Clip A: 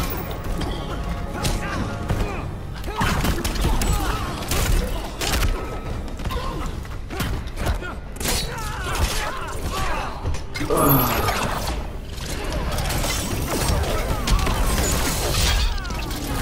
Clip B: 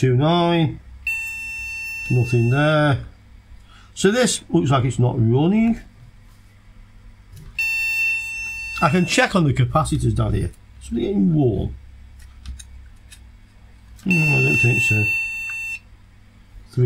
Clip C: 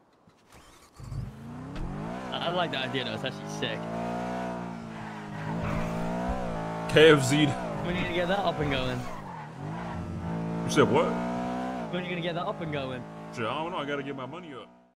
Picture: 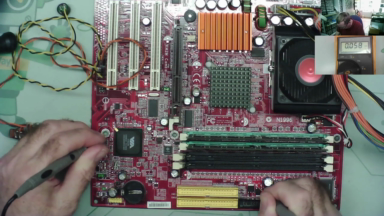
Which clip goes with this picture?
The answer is B